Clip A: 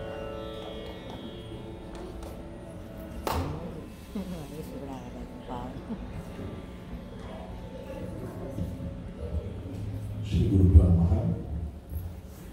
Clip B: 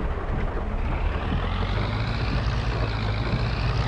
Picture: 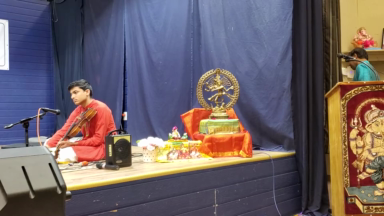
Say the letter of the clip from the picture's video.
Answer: A